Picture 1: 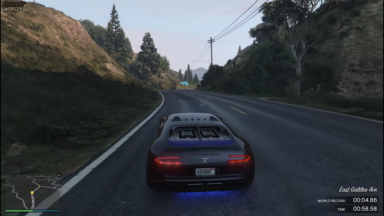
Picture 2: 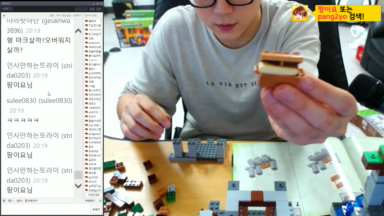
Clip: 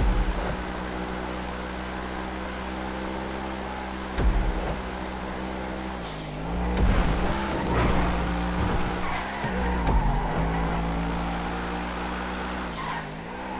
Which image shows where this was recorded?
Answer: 1